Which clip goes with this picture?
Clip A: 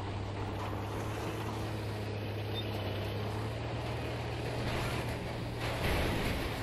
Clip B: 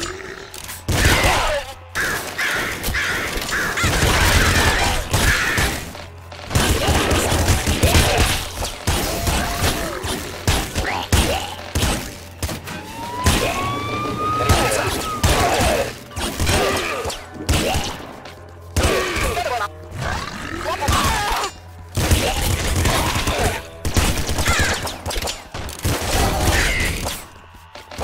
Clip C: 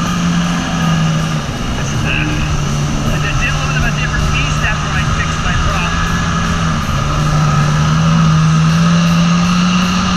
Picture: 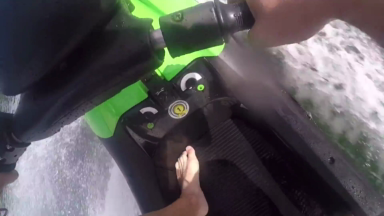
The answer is C